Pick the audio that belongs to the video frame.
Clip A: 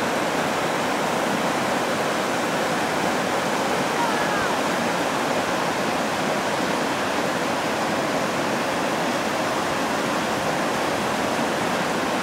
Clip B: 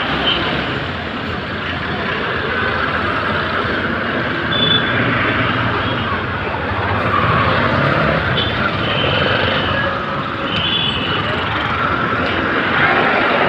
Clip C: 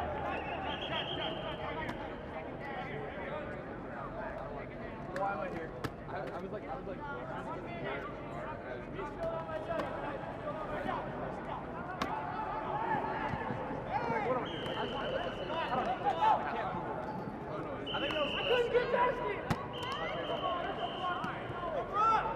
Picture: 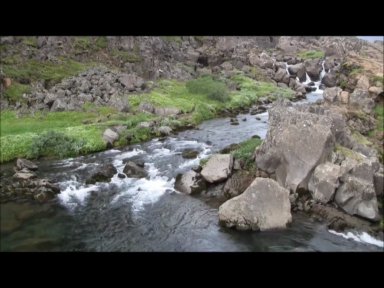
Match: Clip A